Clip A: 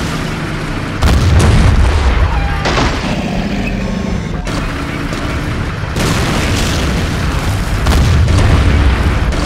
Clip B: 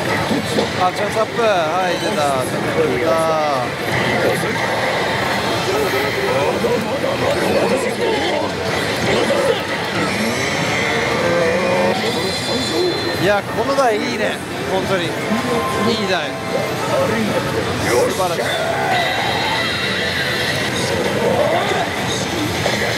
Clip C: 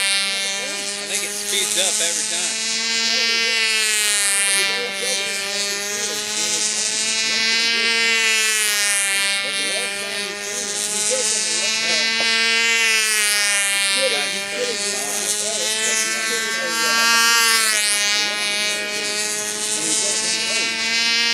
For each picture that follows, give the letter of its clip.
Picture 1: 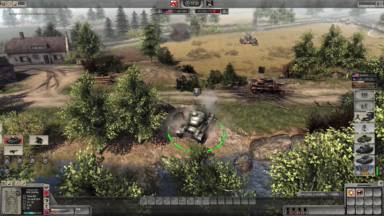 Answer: A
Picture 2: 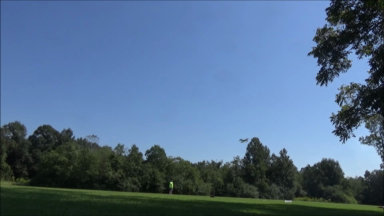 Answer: C